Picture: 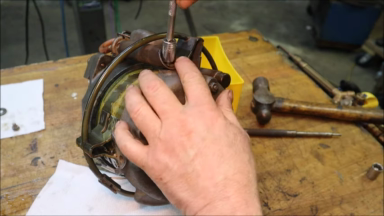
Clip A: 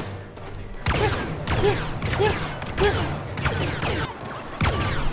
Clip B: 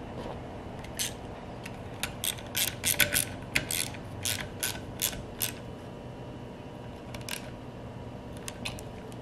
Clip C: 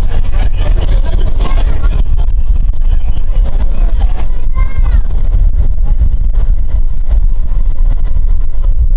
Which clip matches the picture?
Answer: B